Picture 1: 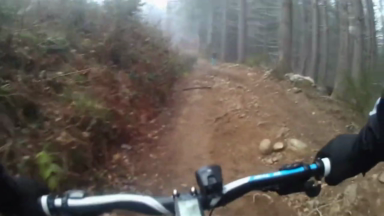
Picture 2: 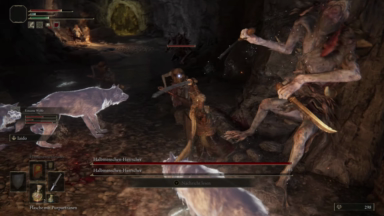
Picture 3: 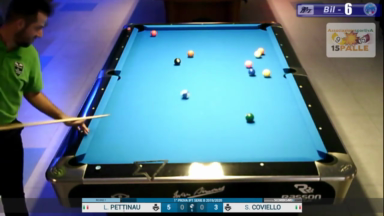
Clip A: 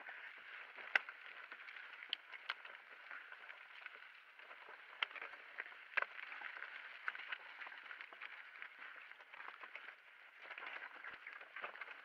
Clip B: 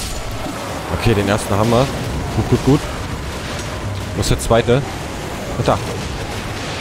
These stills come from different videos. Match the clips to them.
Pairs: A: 1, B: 2